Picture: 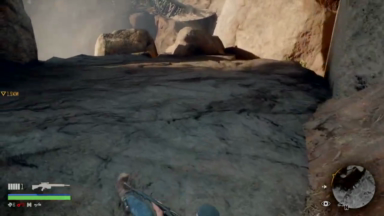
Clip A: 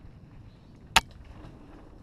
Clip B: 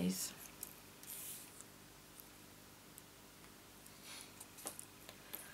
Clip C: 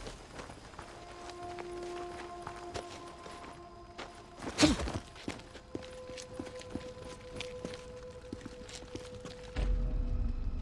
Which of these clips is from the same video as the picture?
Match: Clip C